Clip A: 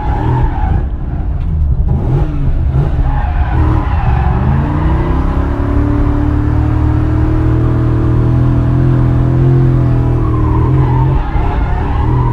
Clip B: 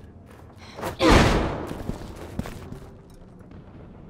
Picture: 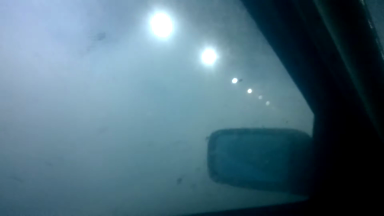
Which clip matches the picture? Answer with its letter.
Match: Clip A